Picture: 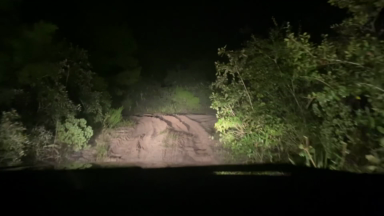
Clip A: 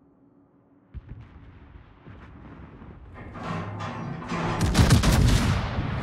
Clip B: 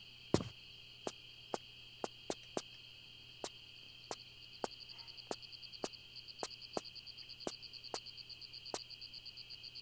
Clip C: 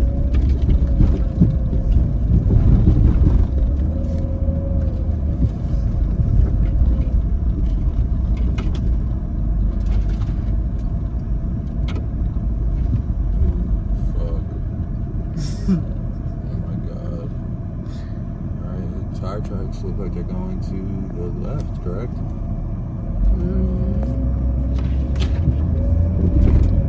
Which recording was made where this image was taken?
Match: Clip C